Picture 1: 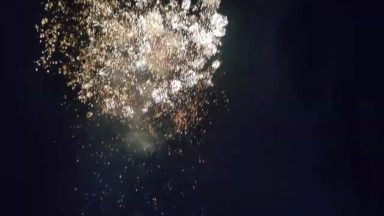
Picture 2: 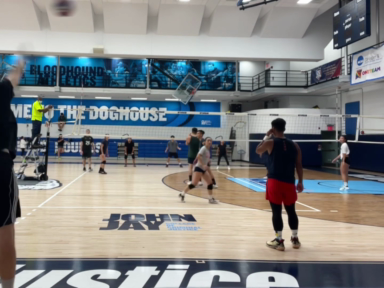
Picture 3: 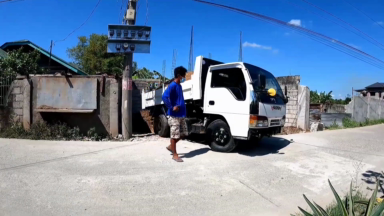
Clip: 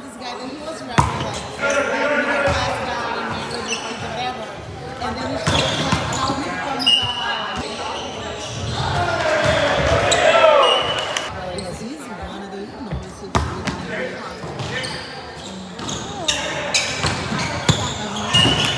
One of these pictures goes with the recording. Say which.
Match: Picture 2